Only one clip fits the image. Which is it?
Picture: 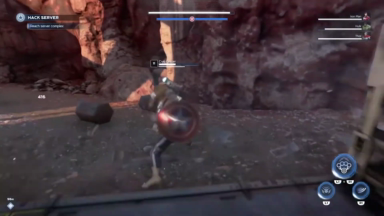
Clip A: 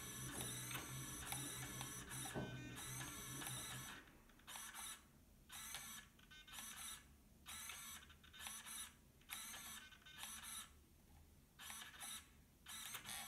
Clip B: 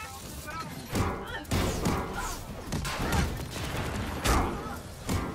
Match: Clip B